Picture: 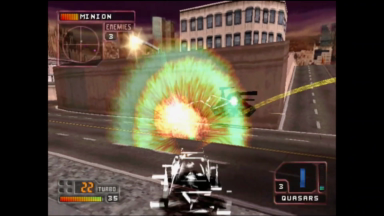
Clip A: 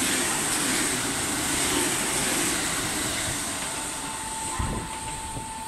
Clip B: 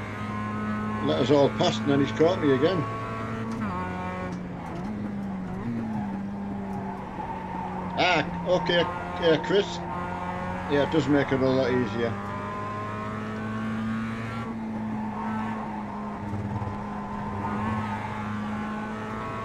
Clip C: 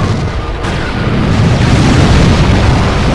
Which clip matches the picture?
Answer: C